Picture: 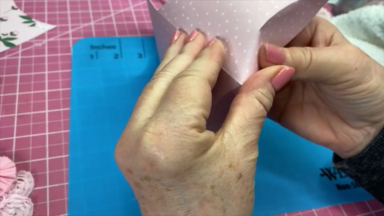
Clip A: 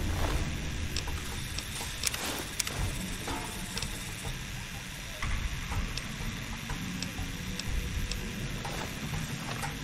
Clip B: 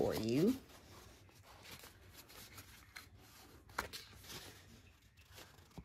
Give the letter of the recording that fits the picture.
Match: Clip B